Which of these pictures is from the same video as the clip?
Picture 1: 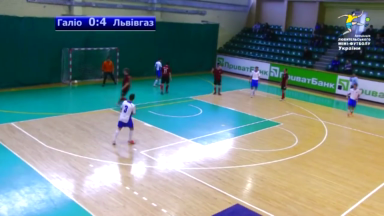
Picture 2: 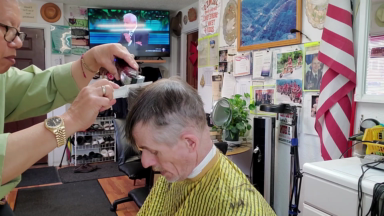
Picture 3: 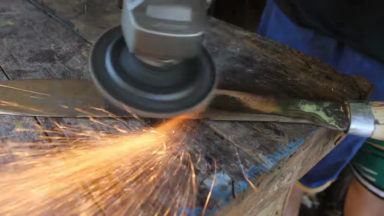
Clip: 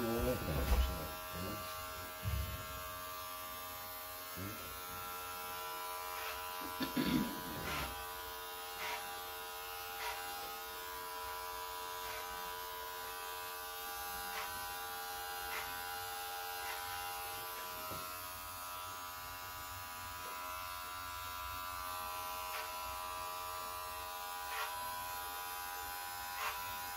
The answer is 2